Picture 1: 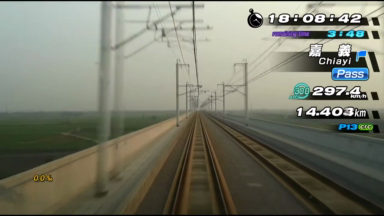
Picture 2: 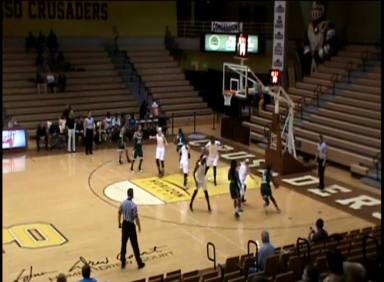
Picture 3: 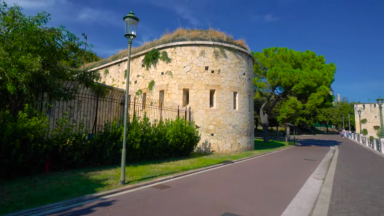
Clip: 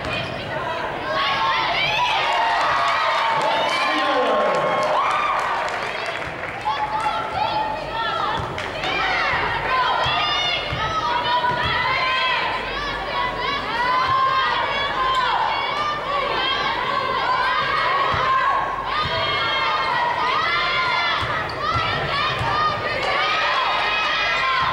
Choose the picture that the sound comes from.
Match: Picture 2